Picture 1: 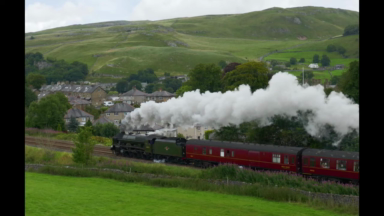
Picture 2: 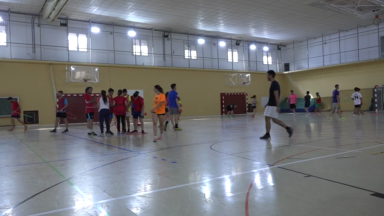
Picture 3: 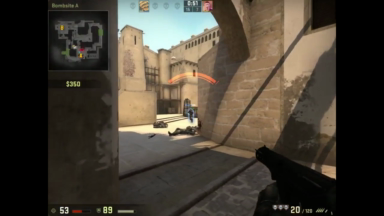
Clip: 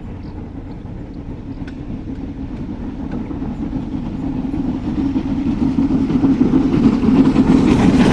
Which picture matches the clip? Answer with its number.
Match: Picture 1